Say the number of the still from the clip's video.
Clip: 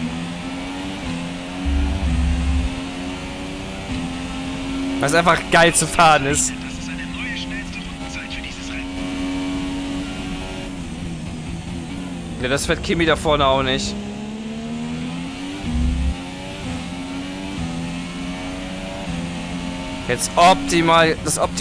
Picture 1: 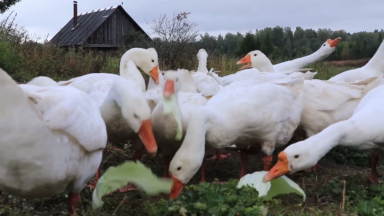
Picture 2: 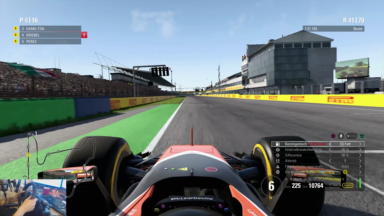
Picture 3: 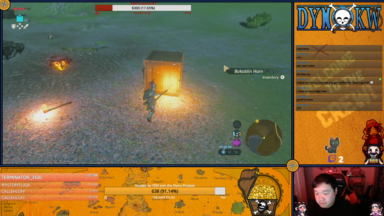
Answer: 2